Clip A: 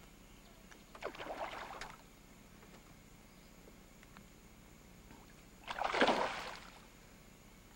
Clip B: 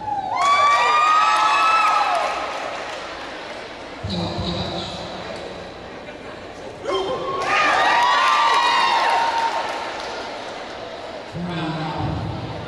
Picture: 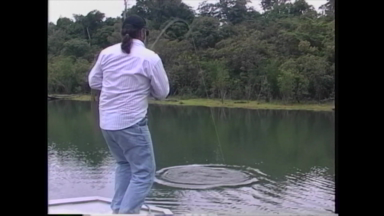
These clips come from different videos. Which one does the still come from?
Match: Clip A